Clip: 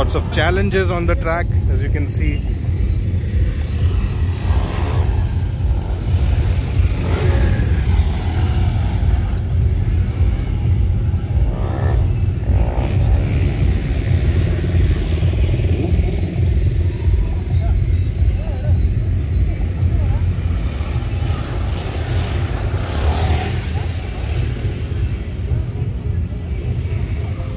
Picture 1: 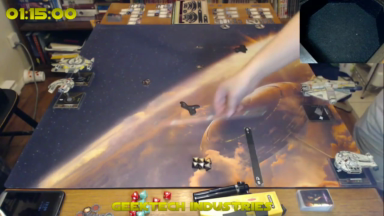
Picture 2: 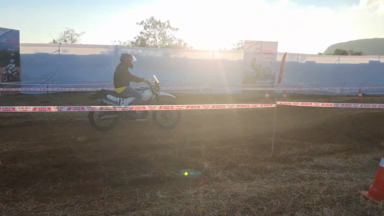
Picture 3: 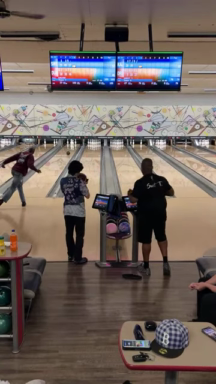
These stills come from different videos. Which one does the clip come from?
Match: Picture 2